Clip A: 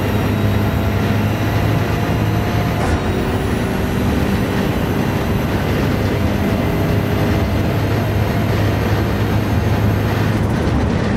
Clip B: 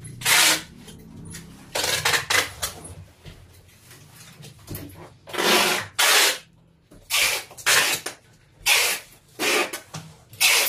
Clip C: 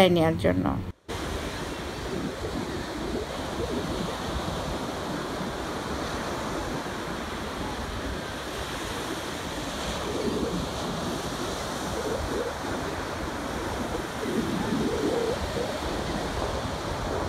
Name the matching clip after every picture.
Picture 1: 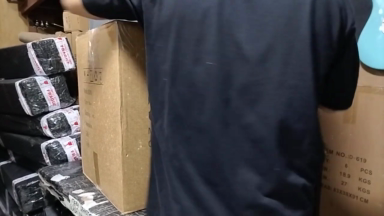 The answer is B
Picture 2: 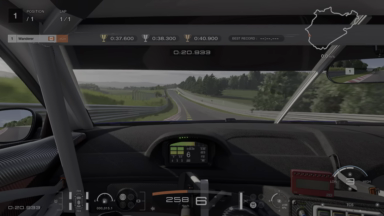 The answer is A